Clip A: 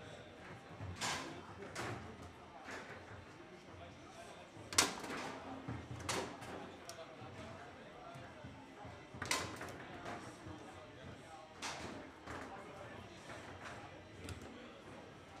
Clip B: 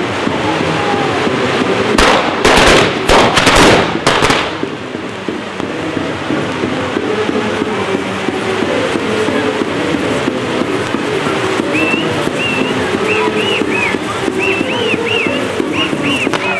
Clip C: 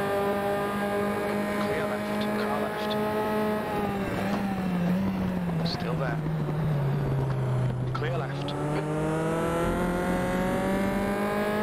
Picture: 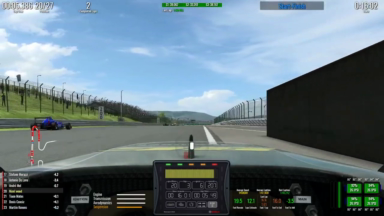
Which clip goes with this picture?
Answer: C